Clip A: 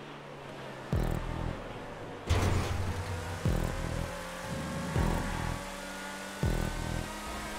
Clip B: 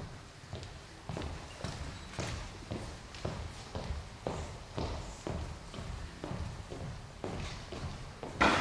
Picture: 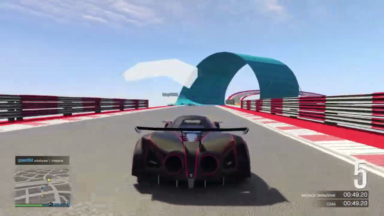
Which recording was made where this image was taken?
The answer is A